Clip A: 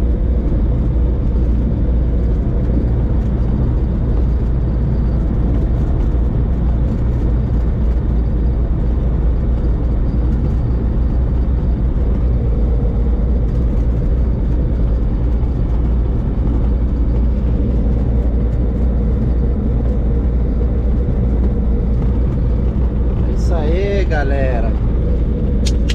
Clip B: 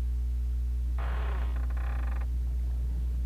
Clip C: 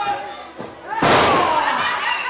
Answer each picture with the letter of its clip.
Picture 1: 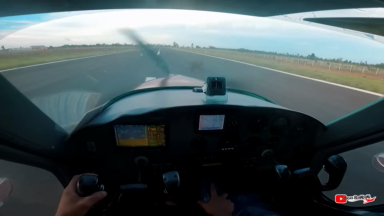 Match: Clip A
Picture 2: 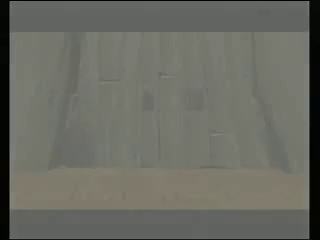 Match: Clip B